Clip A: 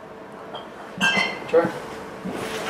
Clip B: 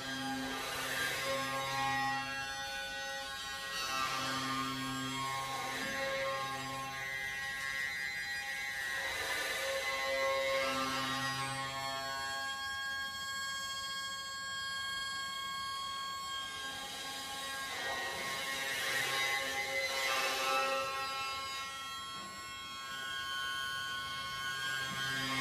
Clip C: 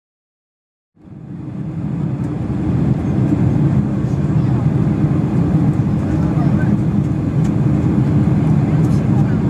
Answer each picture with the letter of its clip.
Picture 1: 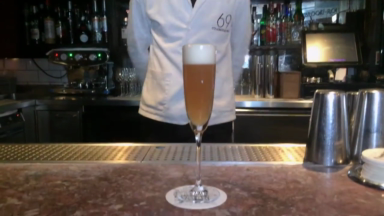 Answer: A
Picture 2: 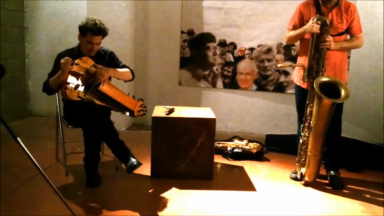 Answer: B